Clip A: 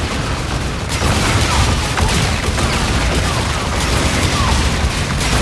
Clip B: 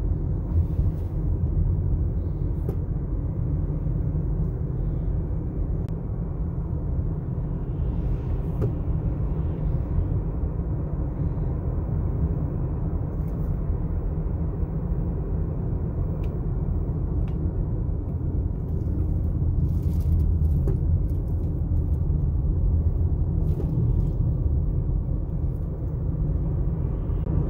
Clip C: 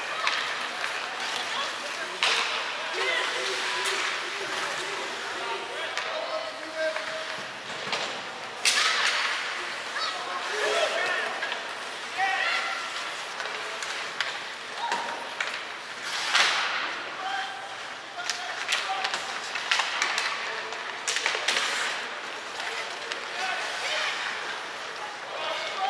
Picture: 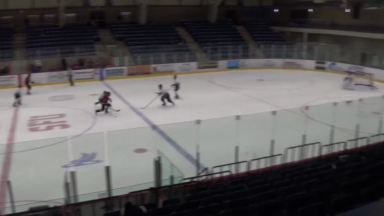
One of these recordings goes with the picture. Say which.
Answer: C